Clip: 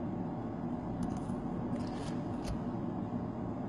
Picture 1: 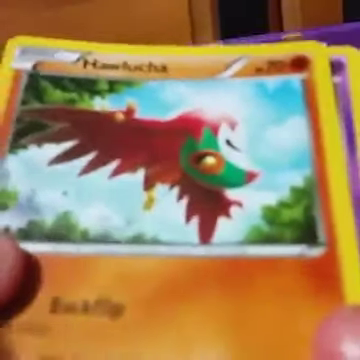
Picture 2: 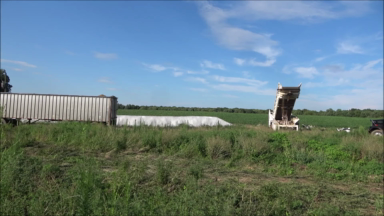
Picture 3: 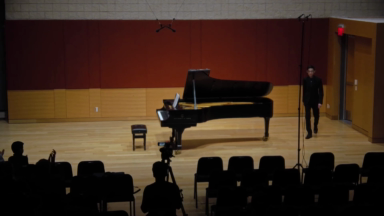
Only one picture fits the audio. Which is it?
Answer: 1